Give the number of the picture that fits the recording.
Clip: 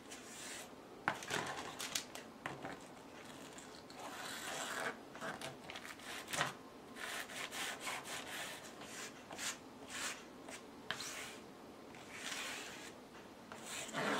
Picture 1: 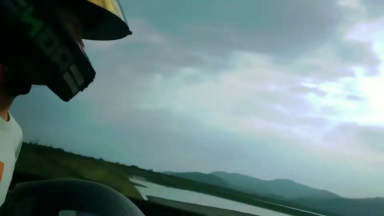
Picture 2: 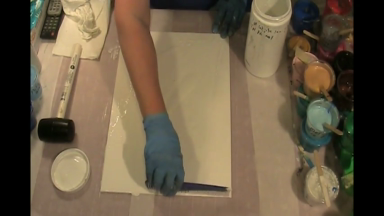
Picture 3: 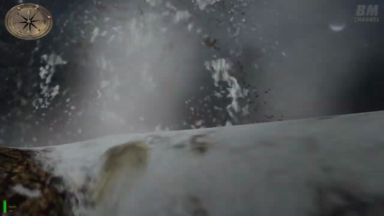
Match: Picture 2